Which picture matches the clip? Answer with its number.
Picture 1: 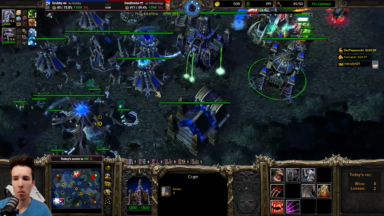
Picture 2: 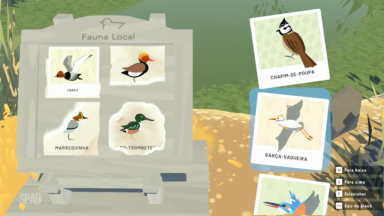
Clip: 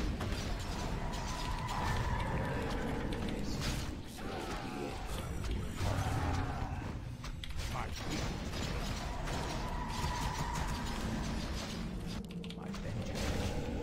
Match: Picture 1